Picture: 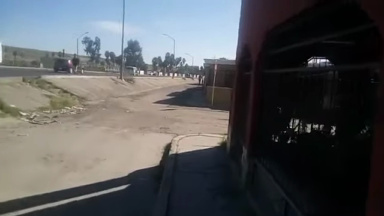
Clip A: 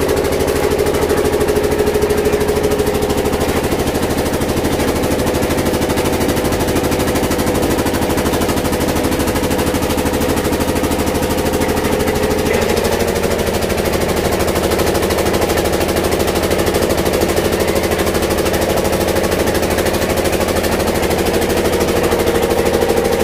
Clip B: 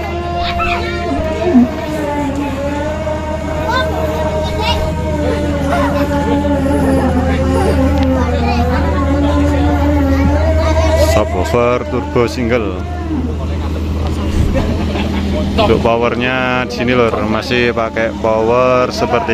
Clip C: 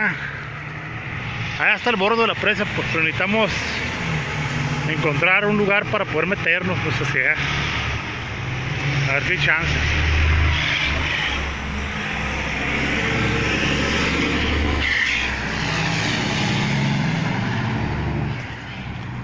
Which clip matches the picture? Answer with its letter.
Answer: C